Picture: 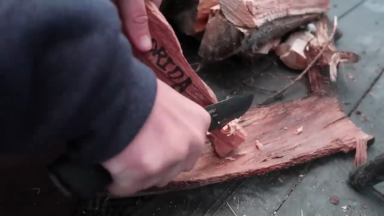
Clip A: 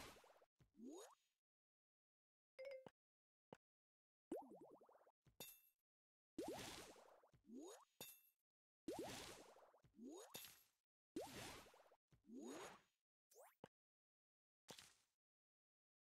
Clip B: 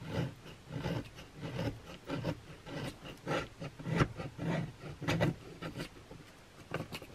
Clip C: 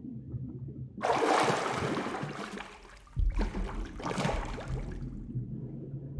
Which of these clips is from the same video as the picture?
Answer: B